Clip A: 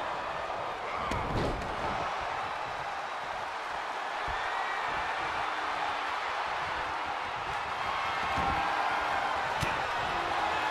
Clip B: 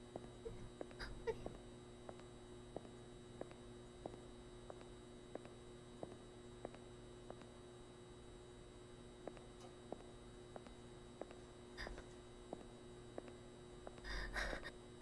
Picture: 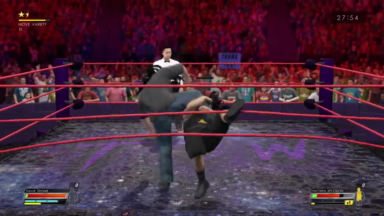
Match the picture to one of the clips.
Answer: A